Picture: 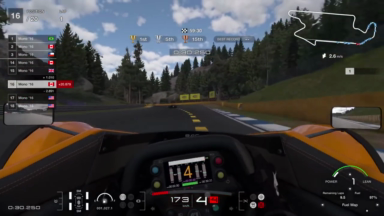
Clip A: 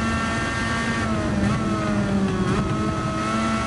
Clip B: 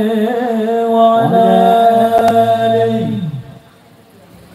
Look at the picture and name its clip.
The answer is A